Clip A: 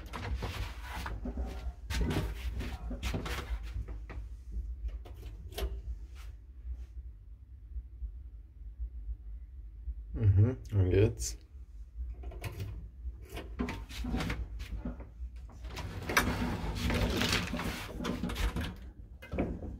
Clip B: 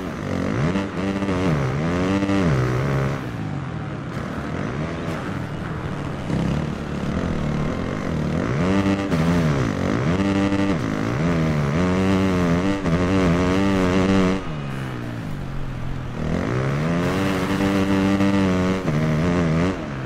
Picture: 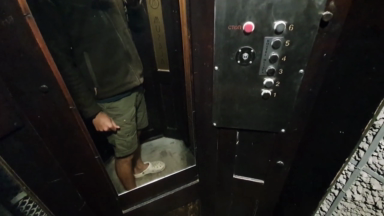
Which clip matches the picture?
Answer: A